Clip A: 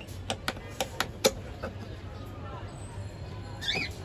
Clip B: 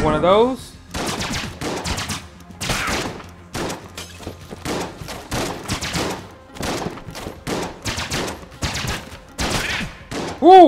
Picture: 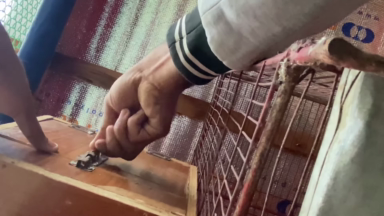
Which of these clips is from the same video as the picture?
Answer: A